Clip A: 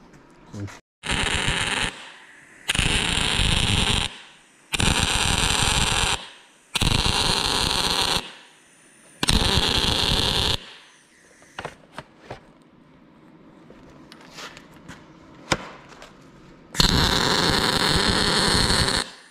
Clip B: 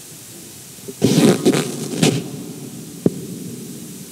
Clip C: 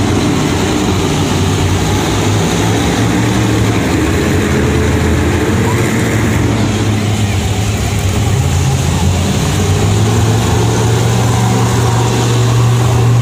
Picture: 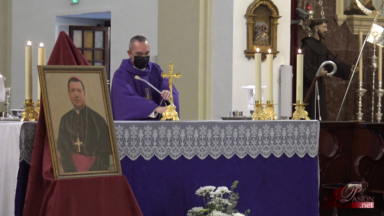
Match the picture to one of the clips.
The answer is B